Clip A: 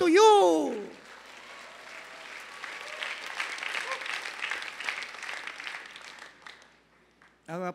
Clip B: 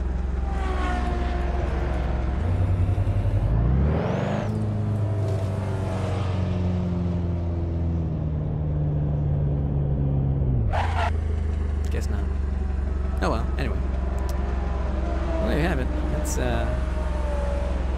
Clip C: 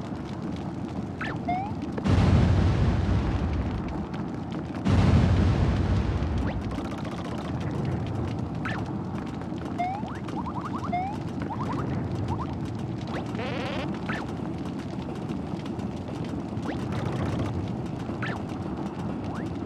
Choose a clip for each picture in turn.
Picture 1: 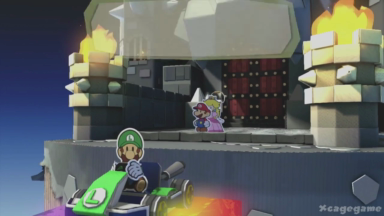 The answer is C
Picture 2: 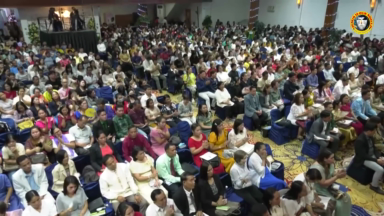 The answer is A